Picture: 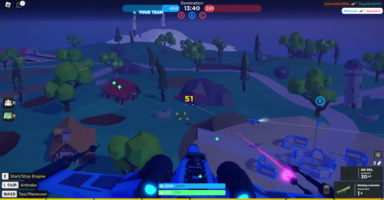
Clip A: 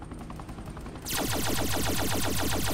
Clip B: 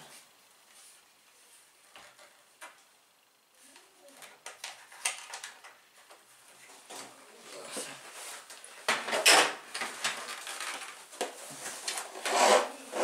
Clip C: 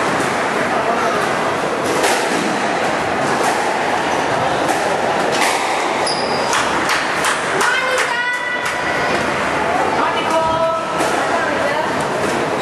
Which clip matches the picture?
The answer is A